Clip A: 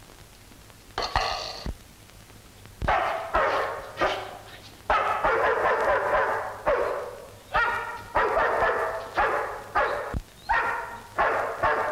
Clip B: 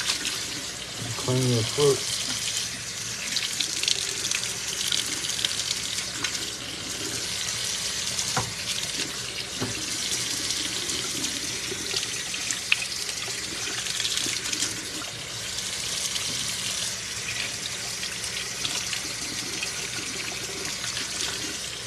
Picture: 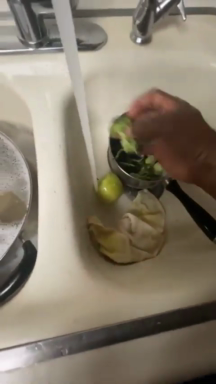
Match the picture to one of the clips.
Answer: B